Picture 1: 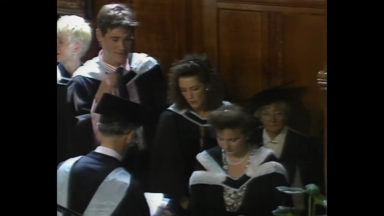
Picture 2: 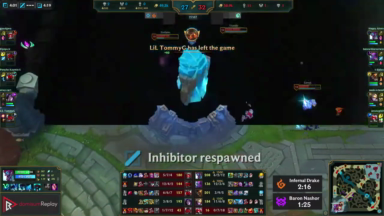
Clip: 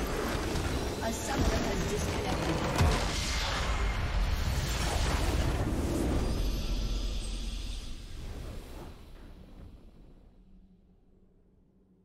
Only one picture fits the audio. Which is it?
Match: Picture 2